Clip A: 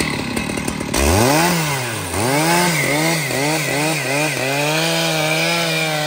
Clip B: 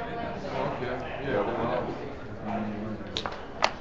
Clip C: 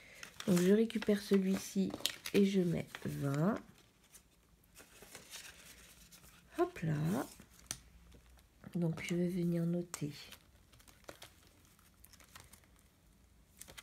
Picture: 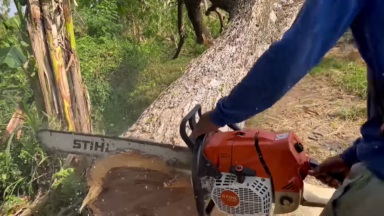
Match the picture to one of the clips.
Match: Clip A